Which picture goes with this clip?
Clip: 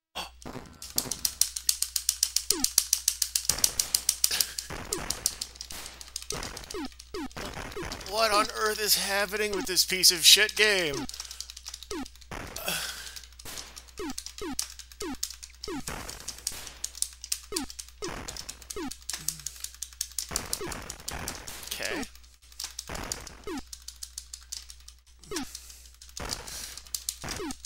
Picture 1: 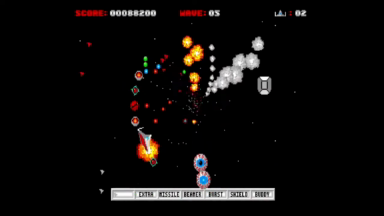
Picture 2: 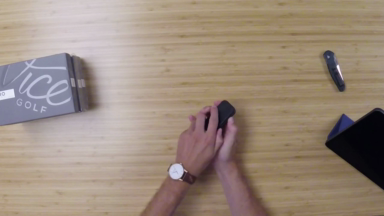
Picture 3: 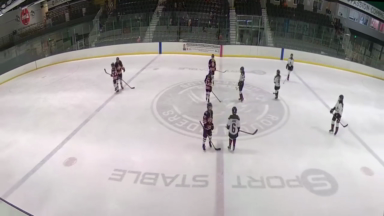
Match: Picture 1